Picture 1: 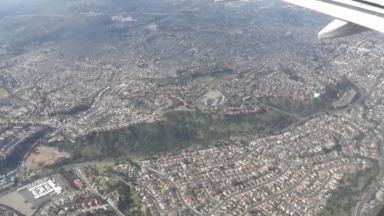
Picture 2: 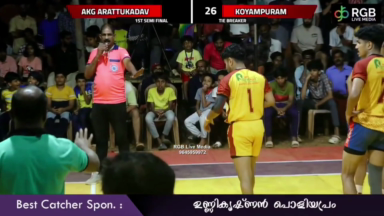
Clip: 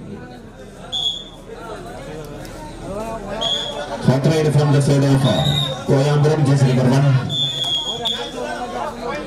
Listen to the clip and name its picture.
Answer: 2